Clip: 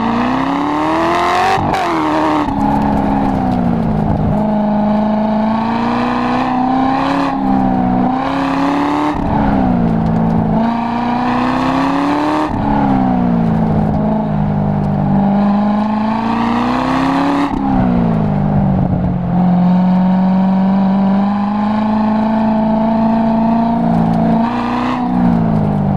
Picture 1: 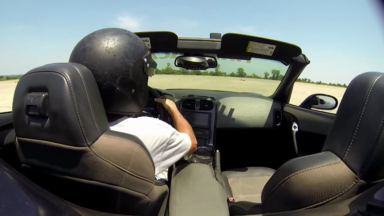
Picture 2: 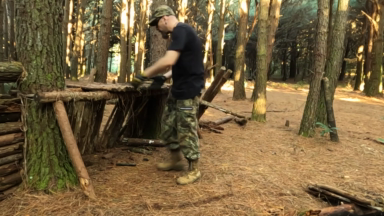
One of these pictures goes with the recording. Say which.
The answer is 1